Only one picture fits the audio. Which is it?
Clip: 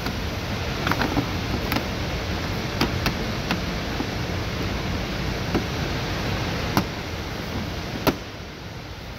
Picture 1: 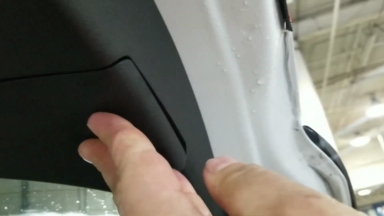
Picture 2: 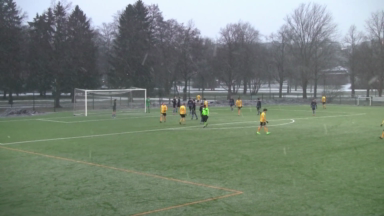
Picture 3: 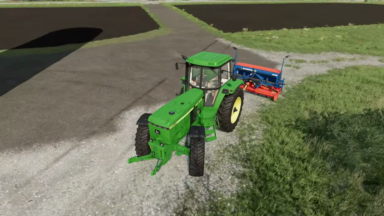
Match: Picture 1